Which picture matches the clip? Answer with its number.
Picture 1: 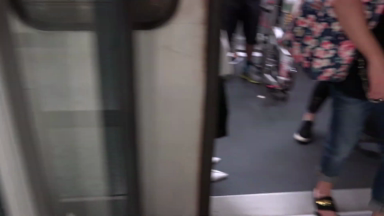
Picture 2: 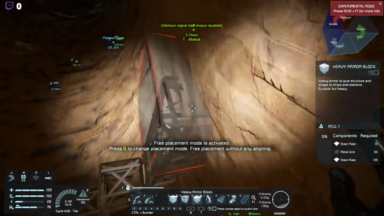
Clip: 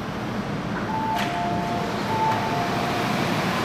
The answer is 1